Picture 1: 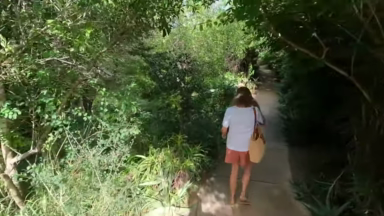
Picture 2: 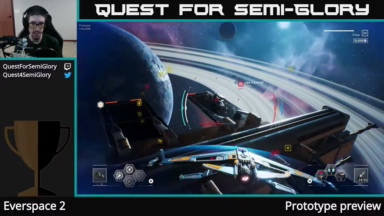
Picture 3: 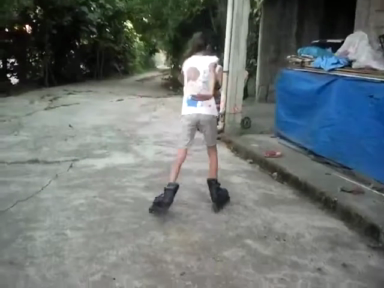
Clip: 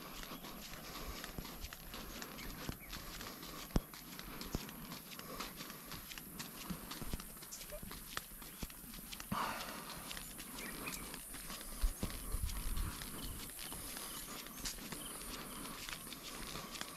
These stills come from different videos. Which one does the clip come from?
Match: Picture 1